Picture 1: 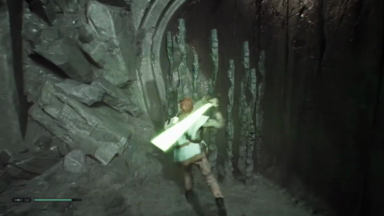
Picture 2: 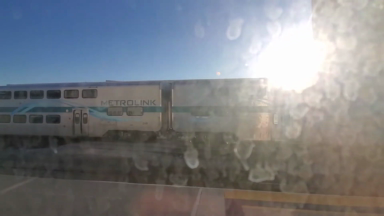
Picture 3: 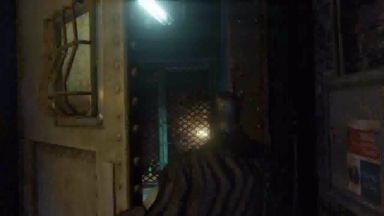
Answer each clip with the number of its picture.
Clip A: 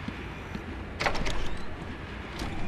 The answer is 3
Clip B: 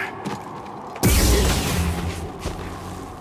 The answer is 1